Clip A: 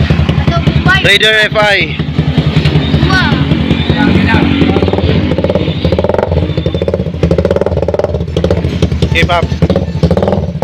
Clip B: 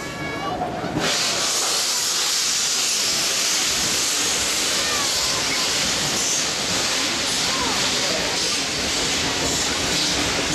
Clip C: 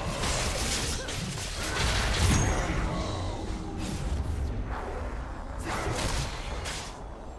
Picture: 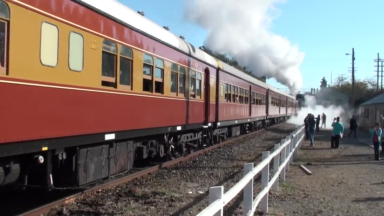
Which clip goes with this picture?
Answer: B